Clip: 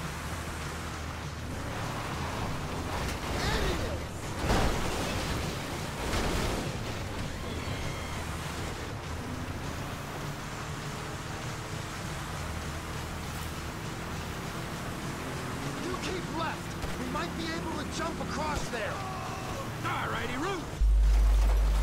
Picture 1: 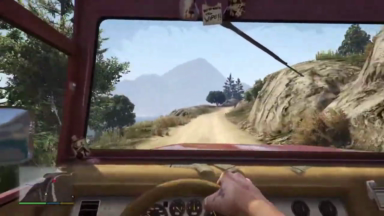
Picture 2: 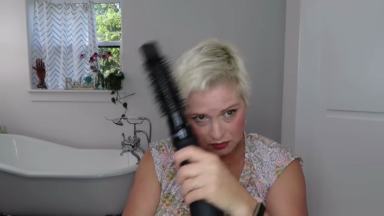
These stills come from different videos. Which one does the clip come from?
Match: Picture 1